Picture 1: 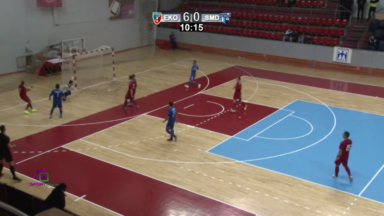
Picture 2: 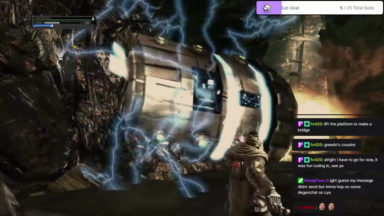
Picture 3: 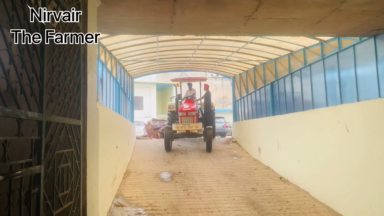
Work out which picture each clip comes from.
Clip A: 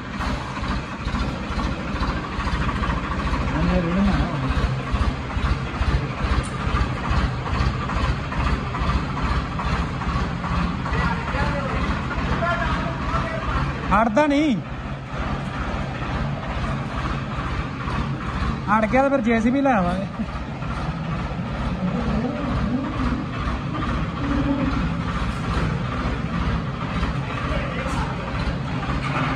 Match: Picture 3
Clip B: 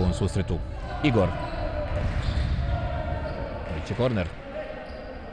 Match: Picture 1